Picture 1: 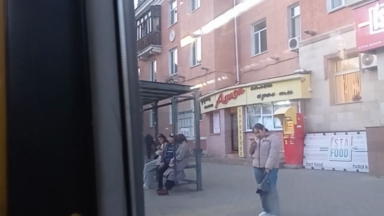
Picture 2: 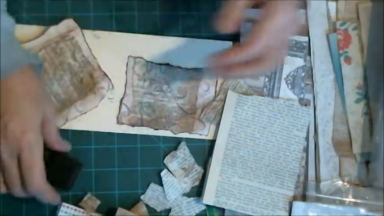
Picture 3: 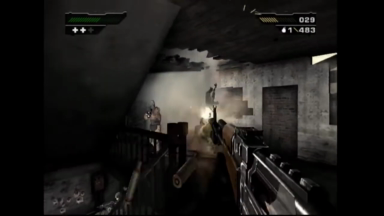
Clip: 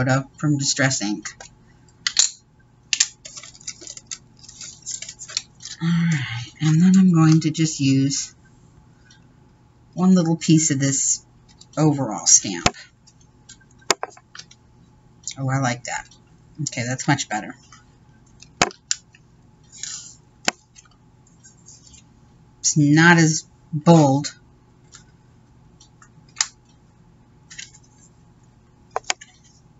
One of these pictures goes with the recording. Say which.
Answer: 2